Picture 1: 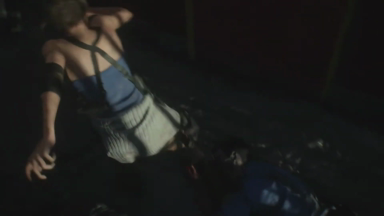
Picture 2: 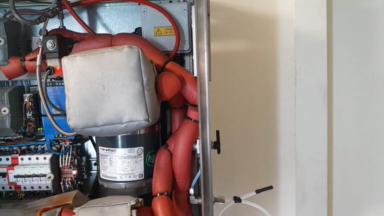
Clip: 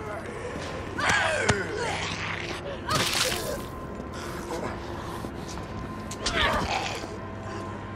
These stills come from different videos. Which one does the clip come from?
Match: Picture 1